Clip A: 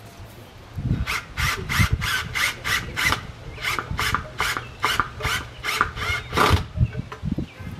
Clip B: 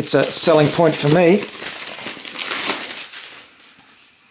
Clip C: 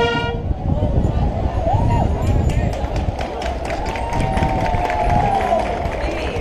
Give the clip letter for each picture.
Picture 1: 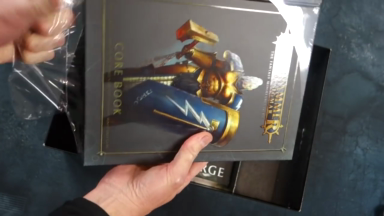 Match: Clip B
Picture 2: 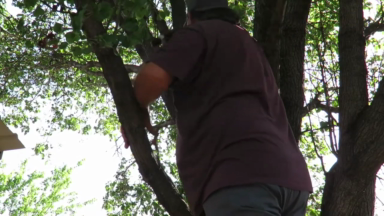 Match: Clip A